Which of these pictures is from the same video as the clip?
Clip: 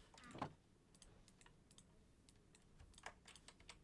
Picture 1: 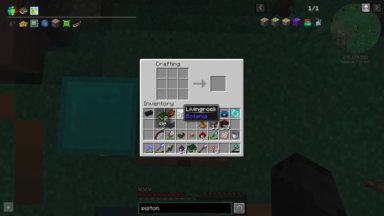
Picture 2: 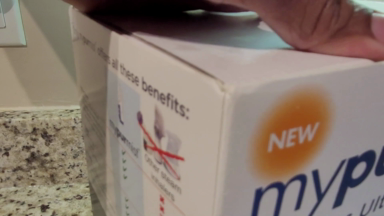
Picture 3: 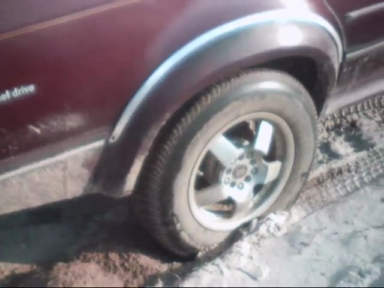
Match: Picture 1